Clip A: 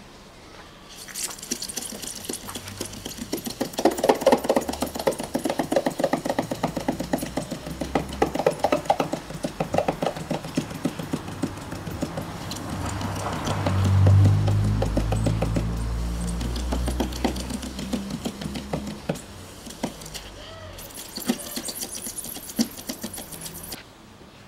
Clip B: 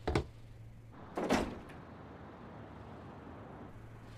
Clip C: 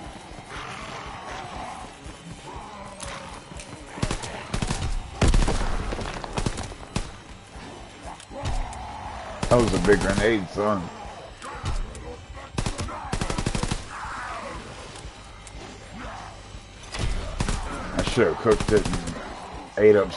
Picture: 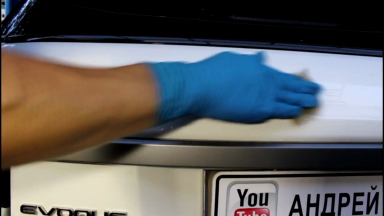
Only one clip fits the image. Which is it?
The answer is A